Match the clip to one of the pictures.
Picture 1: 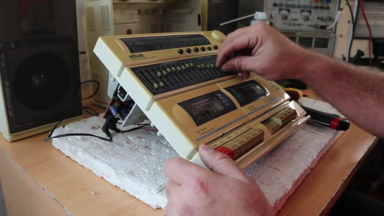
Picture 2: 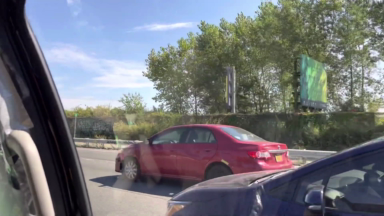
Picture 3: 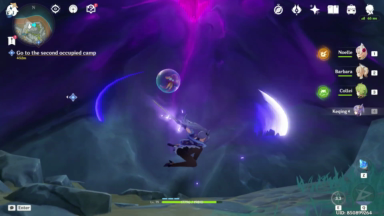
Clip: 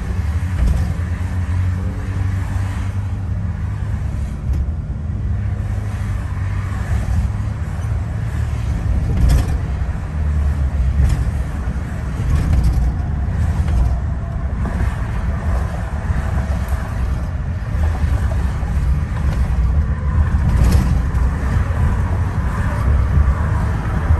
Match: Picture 2